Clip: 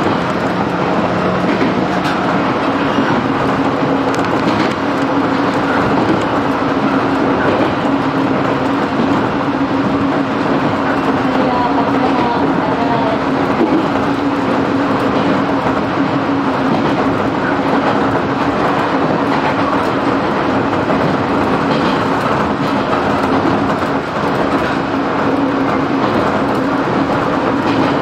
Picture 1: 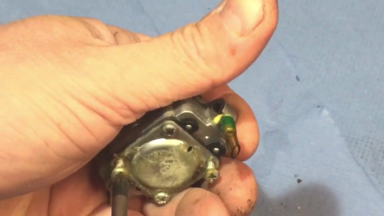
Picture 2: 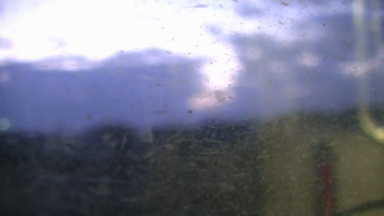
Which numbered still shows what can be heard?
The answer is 2